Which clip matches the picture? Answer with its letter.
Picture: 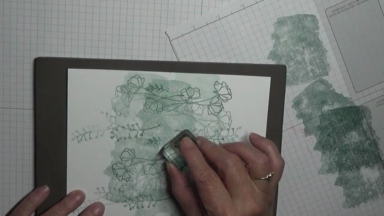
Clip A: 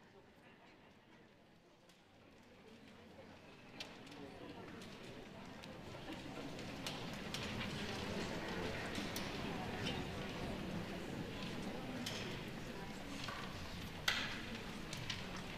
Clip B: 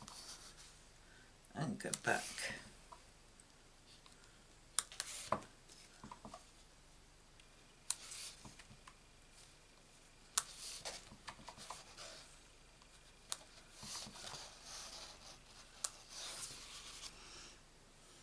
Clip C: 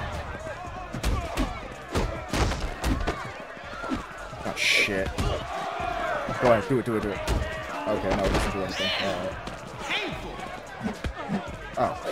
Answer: B